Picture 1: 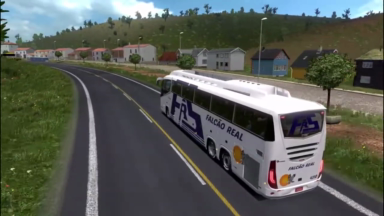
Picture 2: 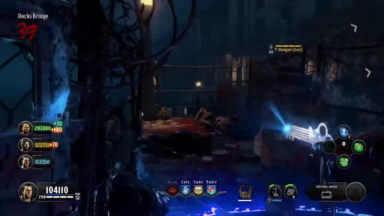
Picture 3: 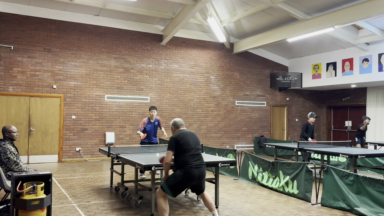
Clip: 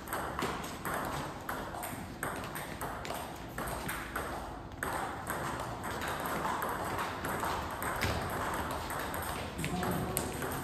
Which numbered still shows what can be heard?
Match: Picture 3